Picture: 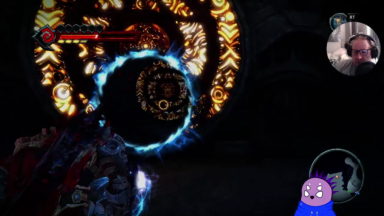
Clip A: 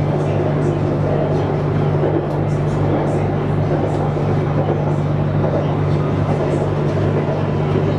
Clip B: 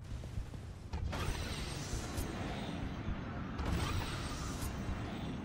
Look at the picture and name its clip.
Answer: B